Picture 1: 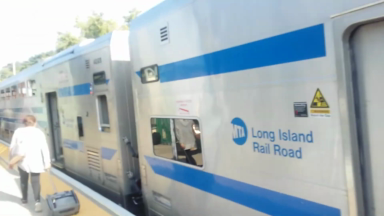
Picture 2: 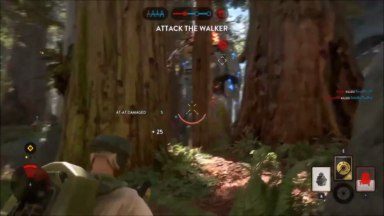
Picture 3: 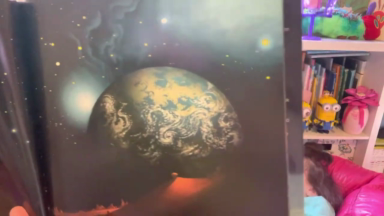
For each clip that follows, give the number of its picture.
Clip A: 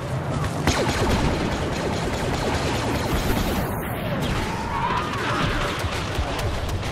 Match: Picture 2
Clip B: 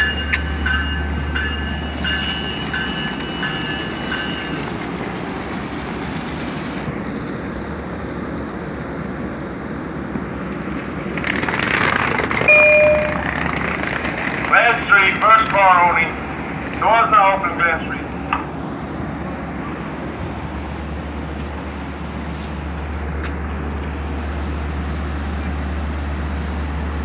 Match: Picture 1